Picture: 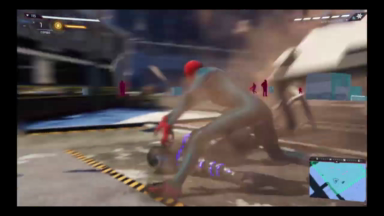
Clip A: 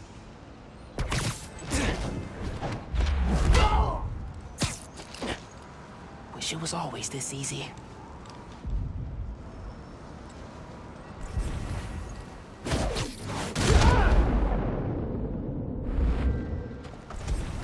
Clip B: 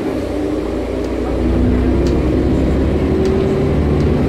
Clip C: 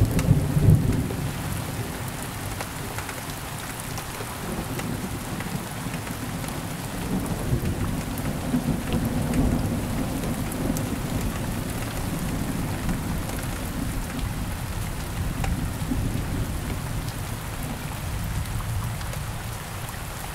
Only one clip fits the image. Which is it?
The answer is A